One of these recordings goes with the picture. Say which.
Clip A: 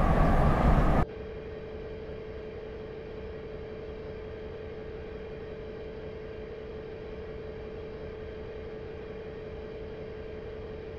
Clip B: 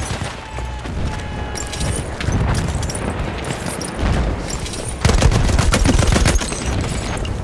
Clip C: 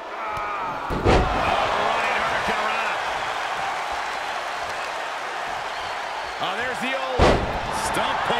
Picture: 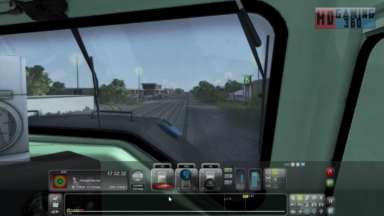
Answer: A